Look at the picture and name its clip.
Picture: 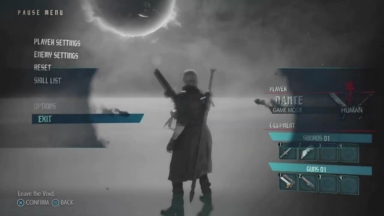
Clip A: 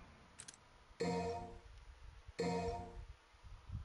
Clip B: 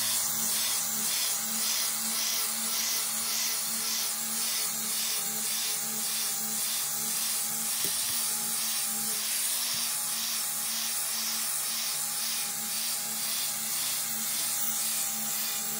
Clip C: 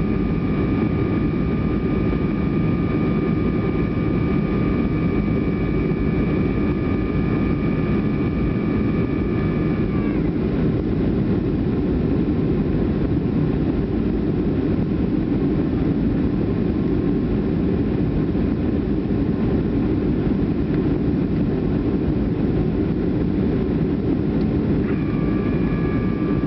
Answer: A